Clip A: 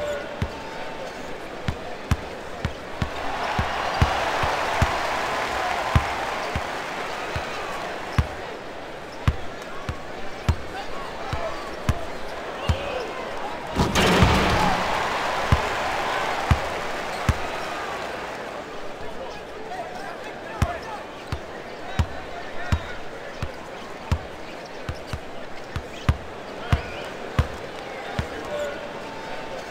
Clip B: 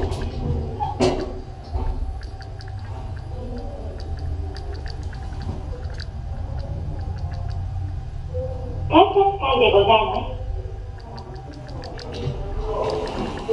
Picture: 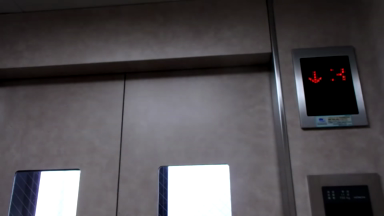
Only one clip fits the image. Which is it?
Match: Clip B